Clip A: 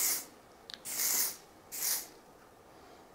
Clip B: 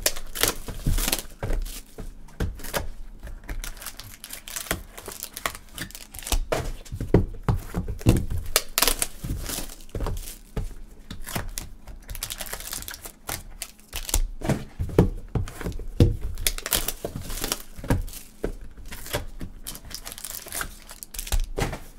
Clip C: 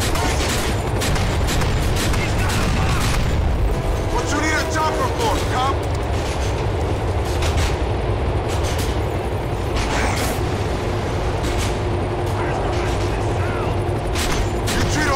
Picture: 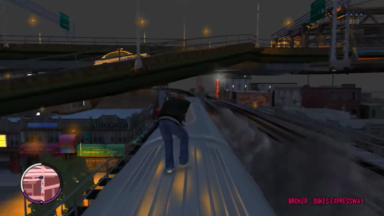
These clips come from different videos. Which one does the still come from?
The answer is C